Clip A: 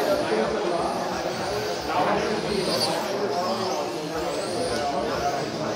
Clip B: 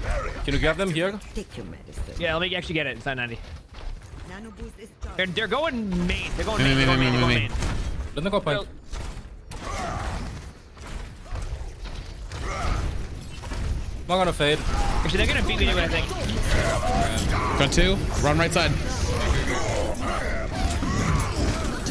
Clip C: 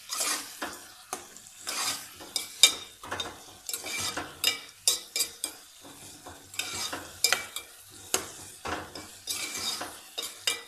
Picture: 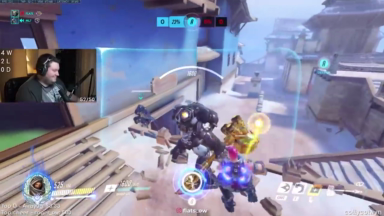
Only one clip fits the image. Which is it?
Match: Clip B